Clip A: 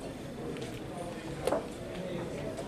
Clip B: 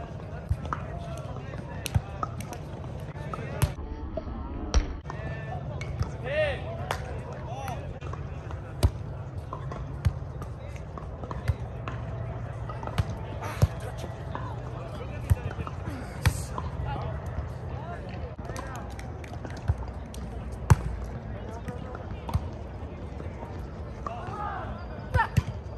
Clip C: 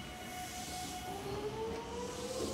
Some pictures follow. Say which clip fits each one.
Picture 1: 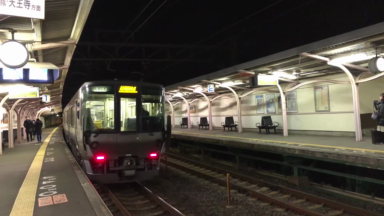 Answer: C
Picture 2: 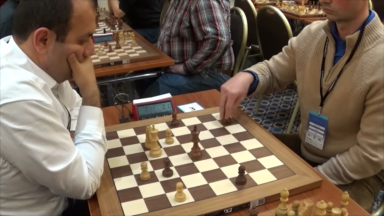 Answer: A